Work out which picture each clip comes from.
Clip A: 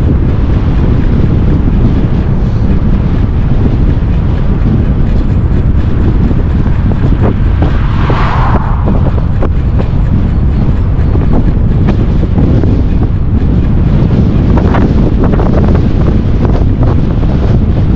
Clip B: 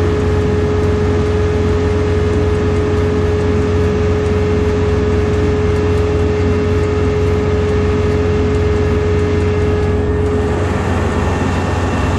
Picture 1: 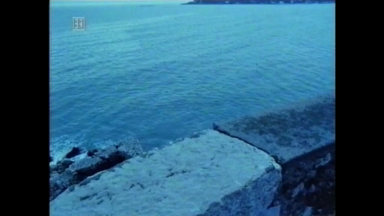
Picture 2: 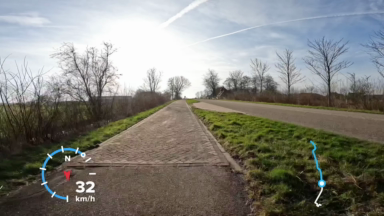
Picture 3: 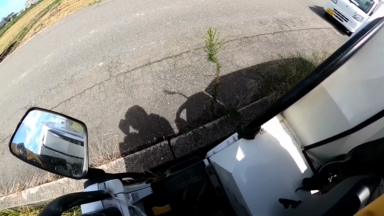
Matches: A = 2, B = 3